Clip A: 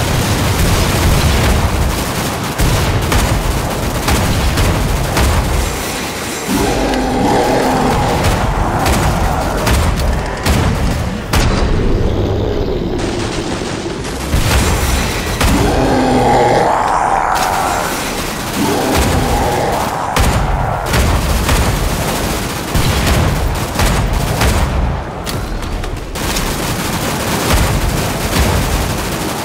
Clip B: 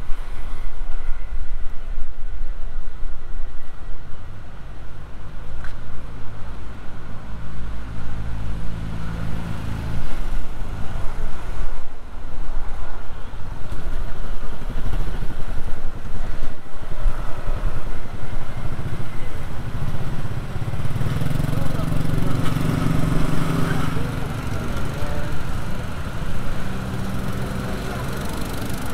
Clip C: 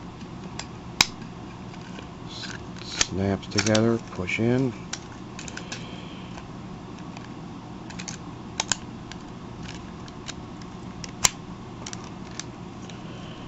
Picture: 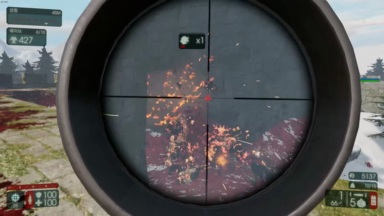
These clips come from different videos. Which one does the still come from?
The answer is A